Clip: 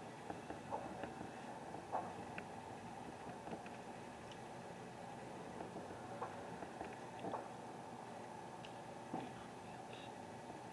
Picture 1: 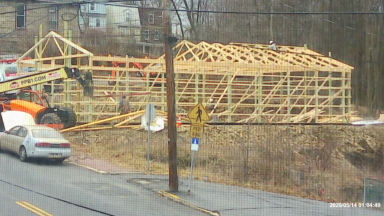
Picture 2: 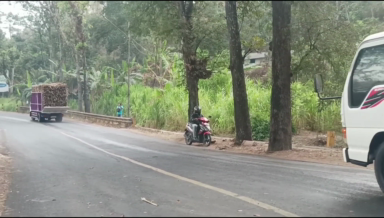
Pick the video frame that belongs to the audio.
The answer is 1